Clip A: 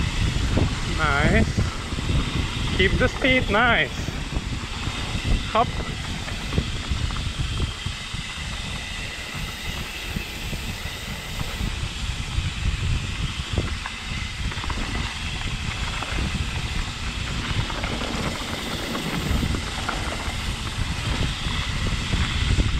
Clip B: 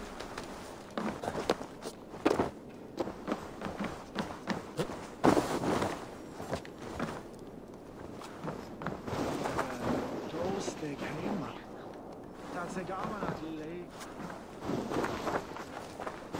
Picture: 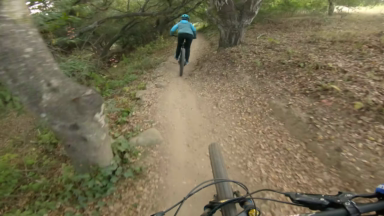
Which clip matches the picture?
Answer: A